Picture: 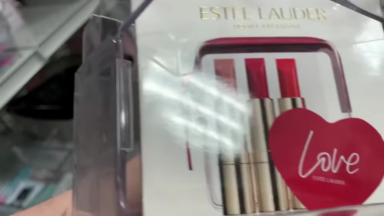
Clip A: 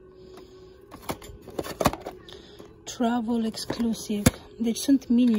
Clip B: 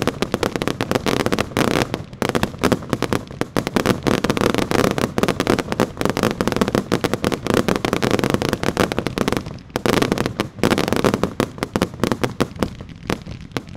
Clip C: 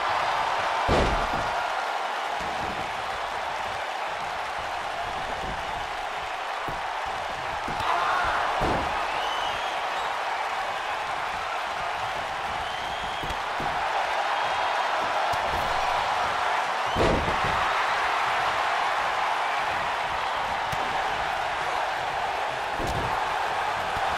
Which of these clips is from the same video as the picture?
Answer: A